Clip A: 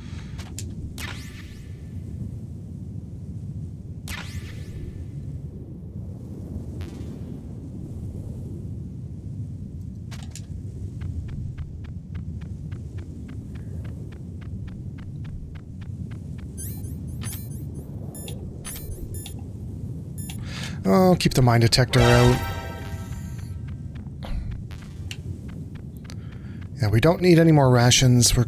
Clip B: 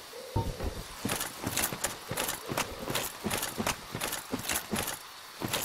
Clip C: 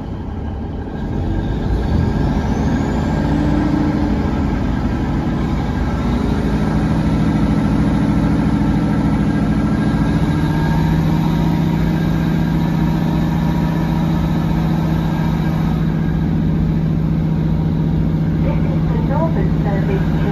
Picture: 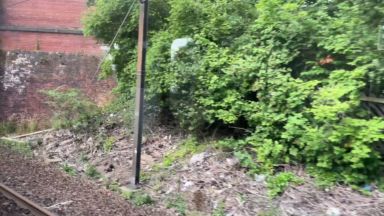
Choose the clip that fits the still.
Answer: C